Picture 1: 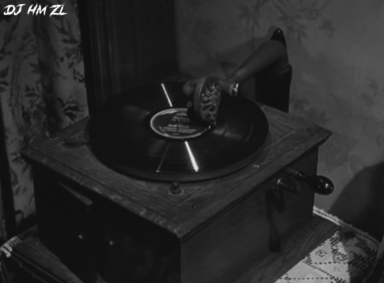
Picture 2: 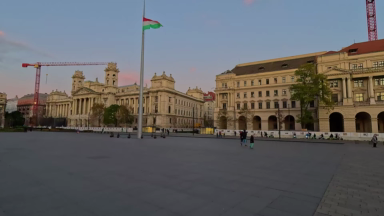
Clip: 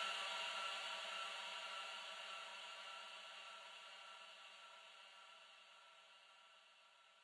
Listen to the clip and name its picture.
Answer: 1